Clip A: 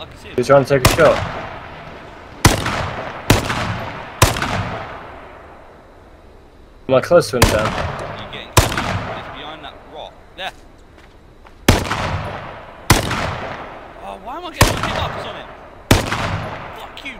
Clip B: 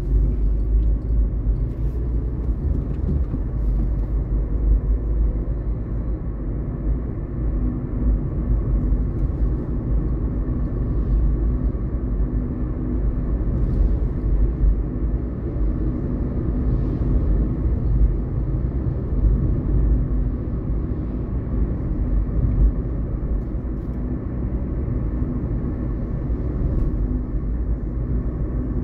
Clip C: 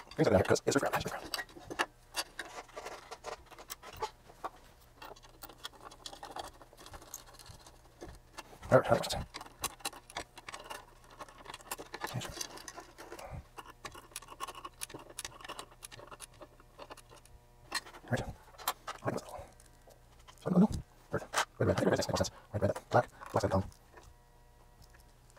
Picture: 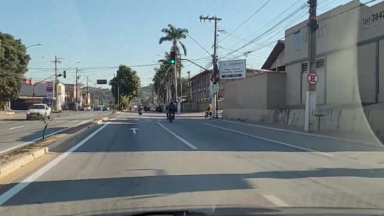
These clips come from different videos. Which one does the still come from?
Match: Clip B